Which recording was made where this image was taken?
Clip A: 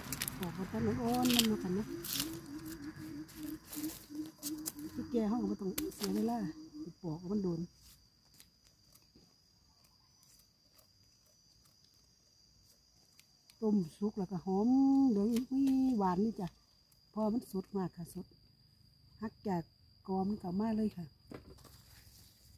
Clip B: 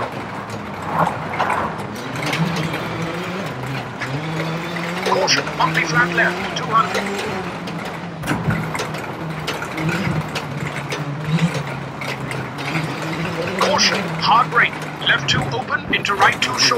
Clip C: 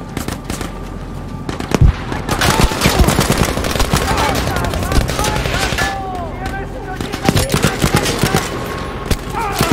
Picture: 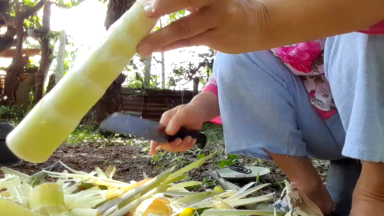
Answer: A